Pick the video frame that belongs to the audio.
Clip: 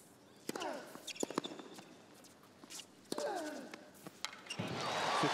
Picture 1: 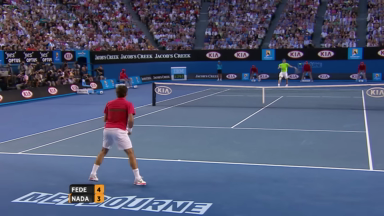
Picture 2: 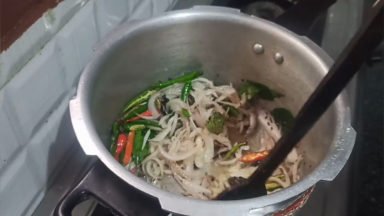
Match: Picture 1